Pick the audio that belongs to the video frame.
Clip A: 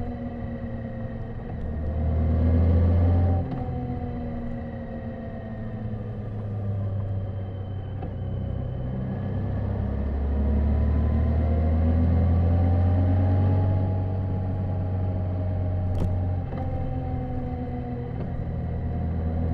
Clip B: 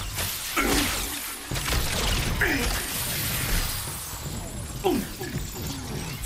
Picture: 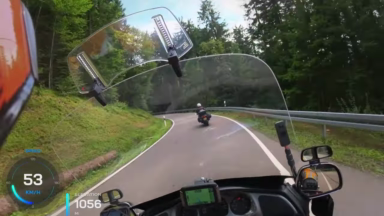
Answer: A